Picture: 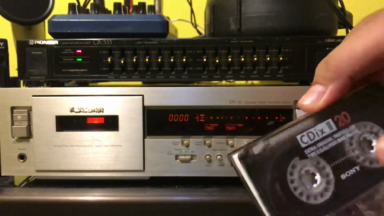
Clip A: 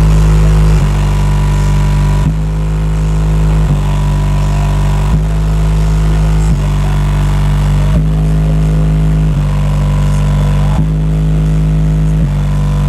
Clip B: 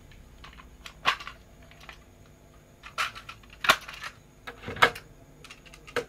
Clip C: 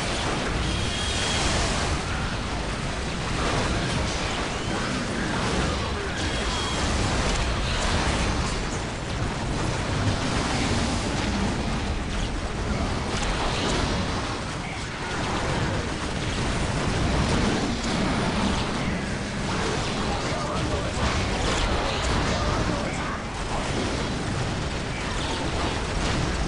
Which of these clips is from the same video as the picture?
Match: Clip B